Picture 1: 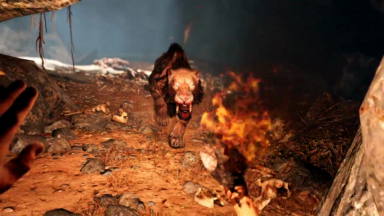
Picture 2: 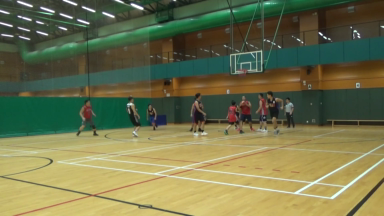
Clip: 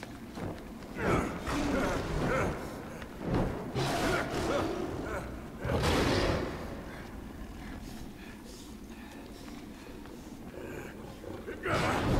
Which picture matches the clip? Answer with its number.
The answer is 1